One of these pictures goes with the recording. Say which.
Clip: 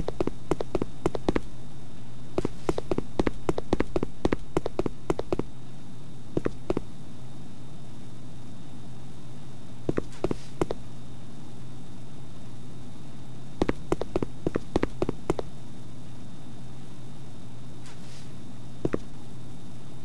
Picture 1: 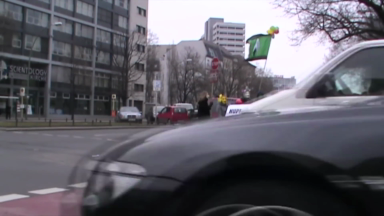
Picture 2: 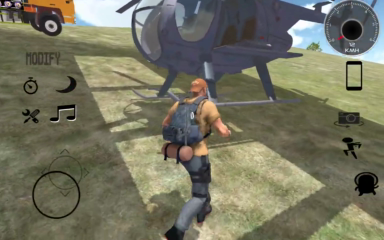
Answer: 2